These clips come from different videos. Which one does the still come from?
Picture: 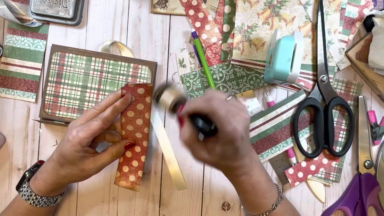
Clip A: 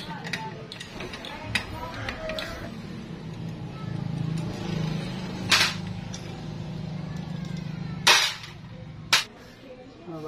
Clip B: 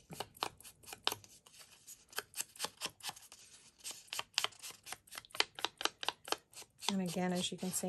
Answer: B